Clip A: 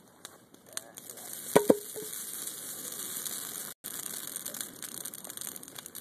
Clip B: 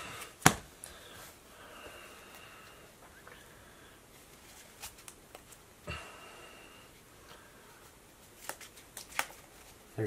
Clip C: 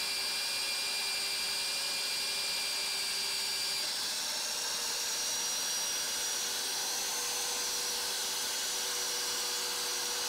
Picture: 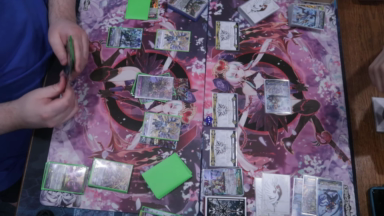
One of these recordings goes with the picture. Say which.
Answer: B